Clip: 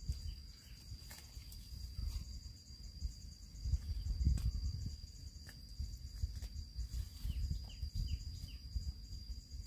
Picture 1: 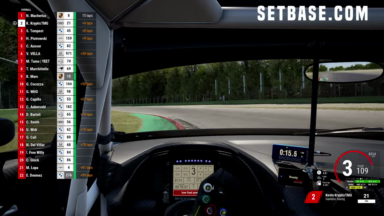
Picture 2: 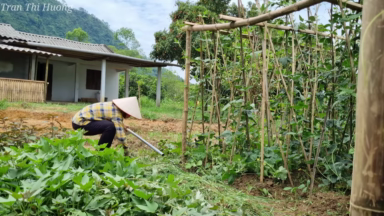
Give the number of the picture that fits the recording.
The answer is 2